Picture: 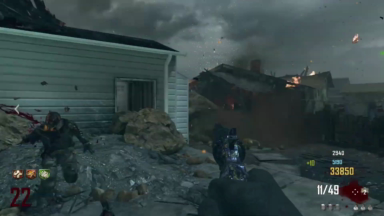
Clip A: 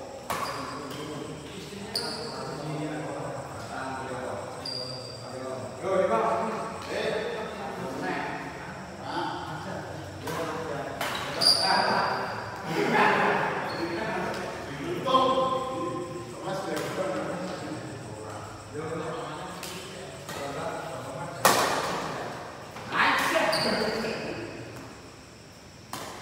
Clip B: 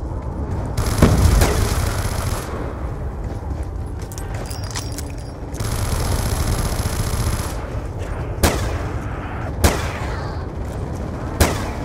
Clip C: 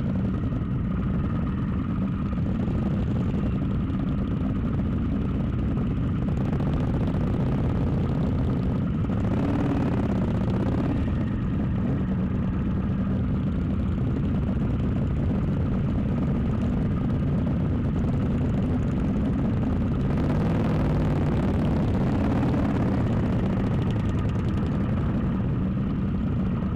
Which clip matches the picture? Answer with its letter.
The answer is B